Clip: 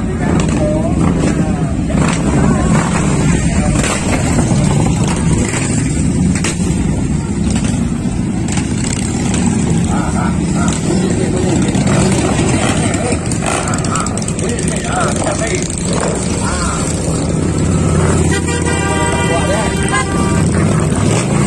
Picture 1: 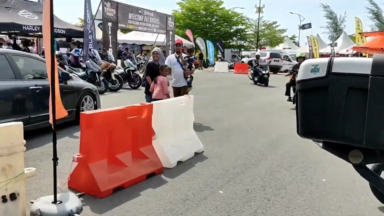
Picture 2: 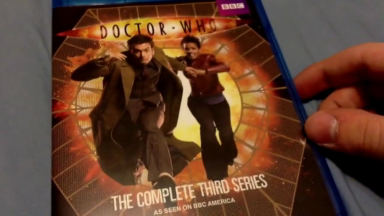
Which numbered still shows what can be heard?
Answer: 1